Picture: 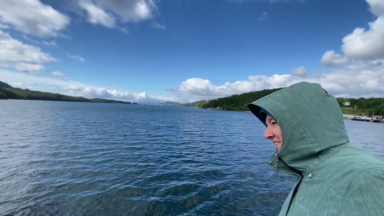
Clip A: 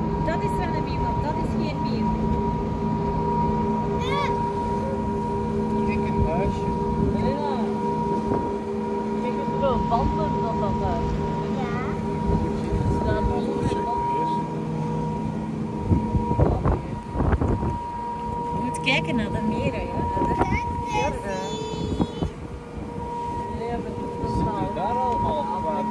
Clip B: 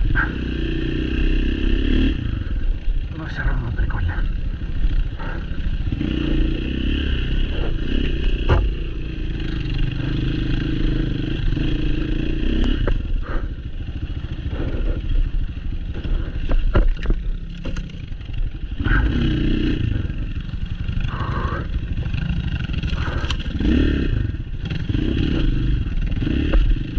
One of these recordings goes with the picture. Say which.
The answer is A